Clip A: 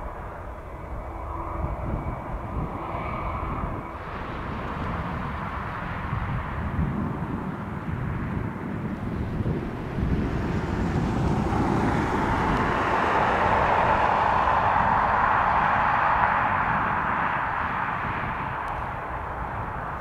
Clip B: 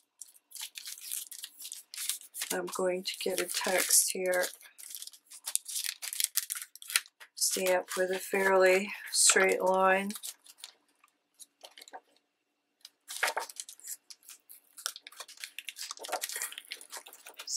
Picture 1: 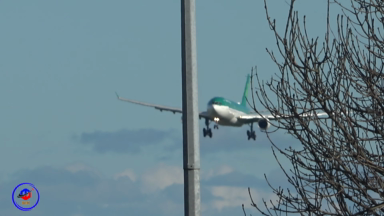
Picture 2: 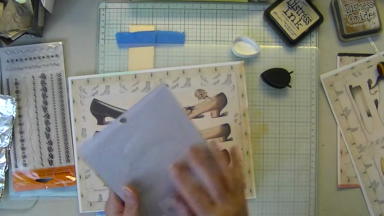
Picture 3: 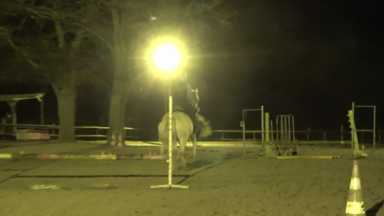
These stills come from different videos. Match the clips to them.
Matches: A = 1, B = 2